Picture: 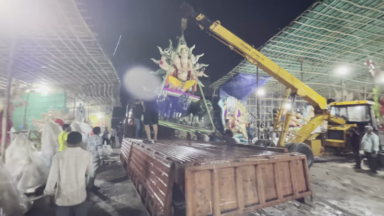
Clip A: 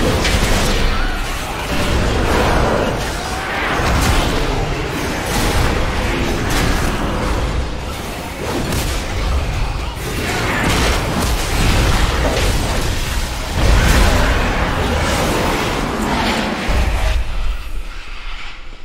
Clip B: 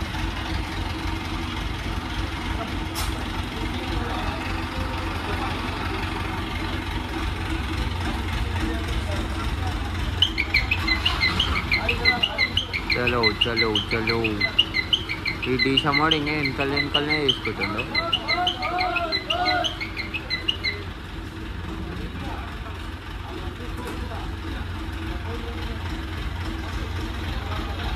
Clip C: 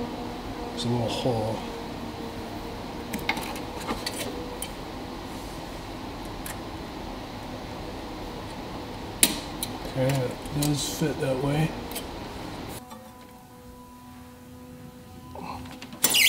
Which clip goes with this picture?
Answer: B